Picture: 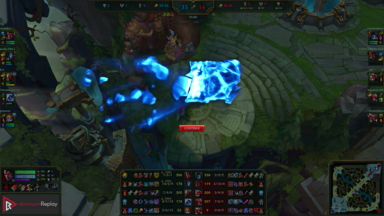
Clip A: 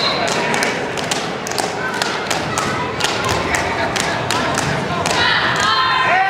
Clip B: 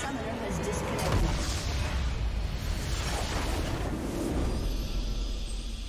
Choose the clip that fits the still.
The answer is B